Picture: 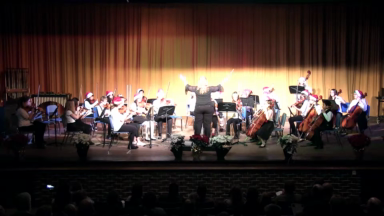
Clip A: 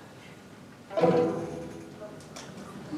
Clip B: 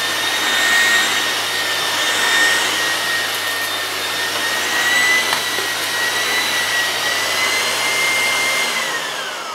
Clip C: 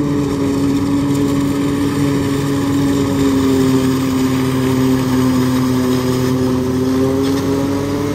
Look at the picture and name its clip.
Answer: A